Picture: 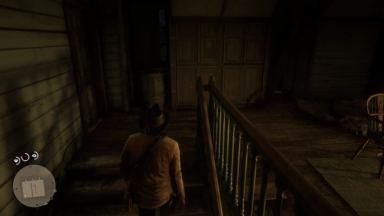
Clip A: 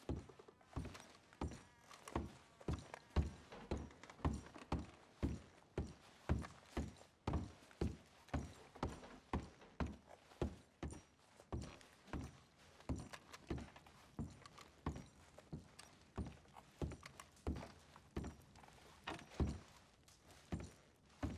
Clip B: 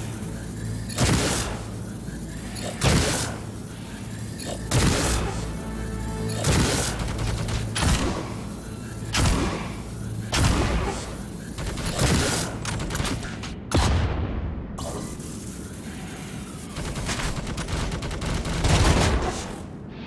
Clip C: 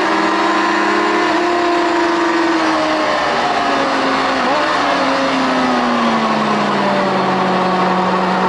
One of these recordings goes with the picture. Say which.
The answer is A